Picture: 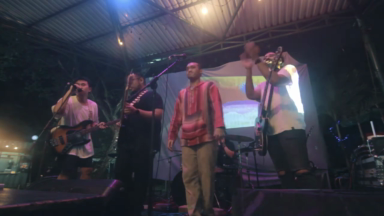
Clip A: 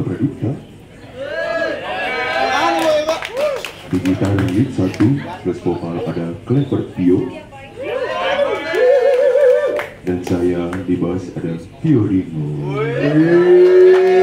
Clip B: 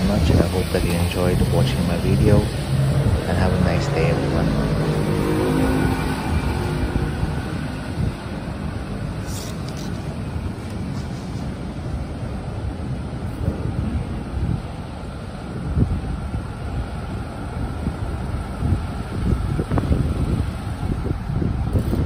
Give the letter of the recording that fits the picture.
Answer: A